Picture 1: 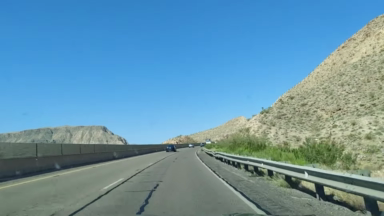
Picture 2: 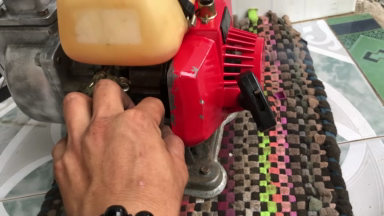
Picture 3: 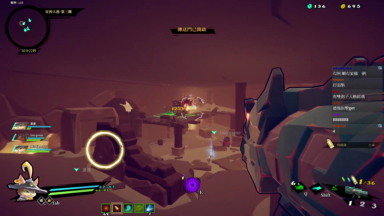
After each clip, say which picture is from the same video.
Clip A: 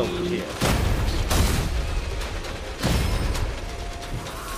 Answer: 3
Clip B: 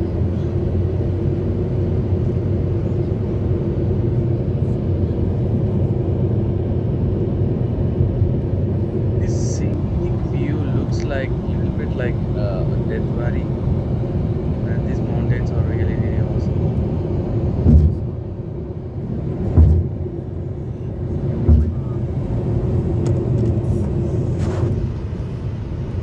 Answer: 1